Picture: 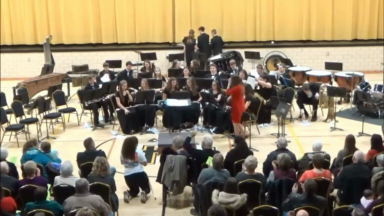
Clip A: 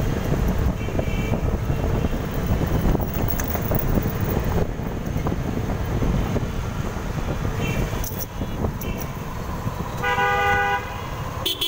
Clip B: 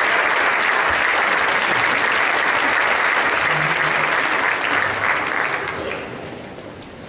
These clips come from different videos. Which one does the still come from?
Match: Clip B